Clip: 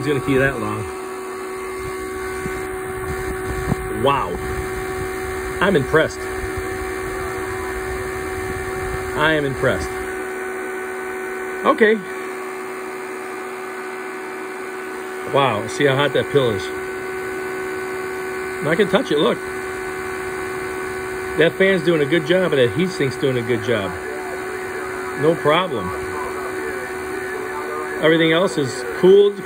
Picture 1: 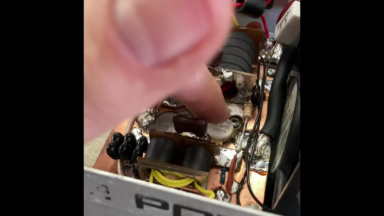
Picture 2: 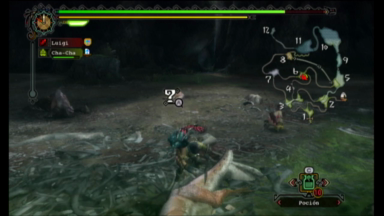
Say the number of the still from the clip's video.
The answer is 1